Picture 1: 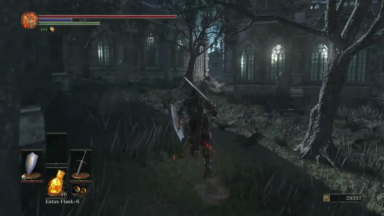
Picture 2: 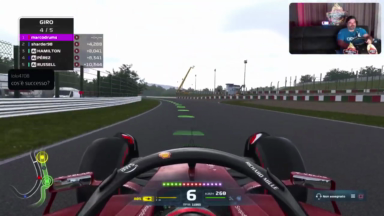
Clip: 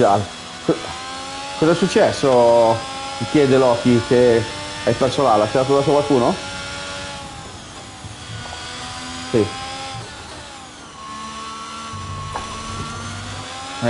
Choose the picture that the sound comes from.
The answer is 2